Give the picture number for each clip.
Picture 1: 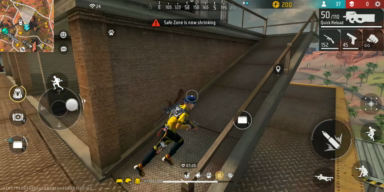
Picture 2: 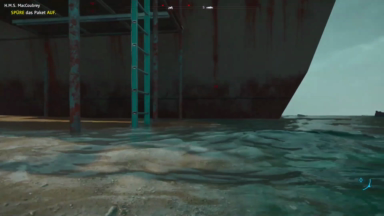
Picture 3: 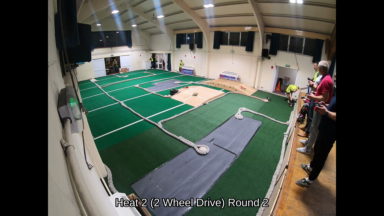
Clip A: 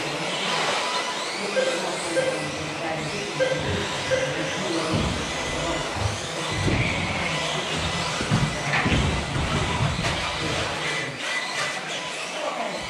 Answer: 3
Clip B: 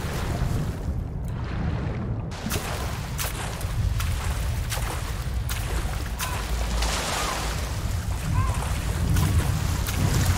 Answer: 2